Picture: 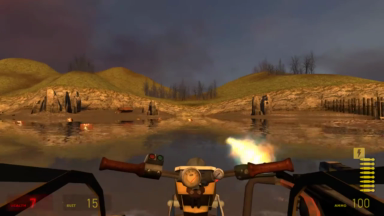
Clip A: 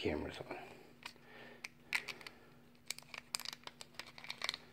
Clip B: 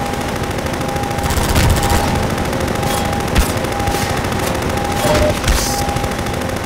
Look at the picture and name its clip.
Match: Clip B